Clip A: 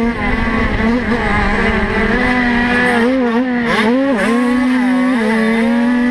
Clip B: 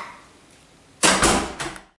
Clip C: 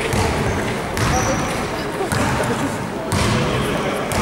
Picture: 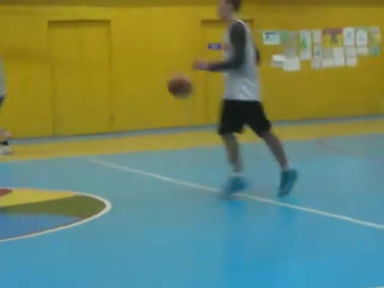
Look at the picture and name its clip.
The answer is C